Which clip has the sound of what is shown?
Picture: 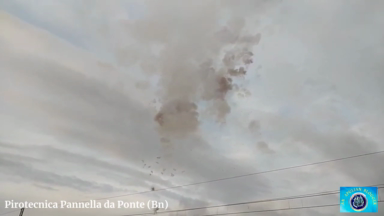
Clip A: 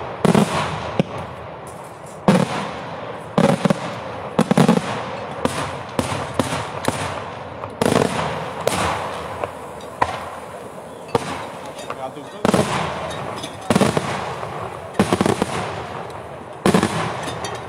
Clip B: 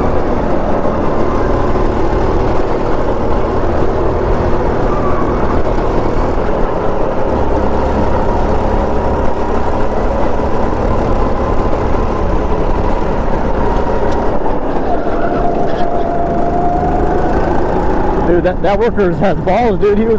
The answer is A